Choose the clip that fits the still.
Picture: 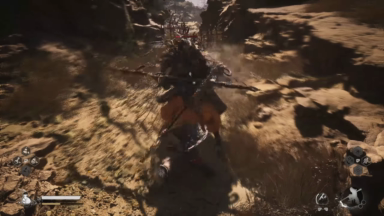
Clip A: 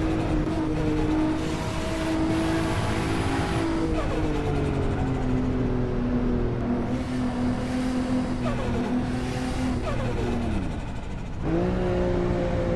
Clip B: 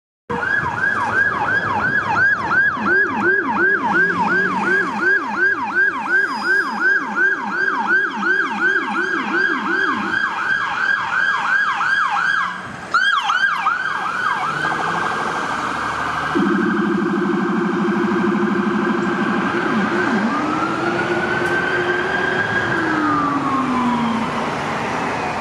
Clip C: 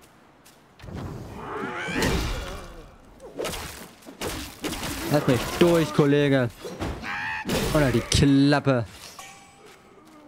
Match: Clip C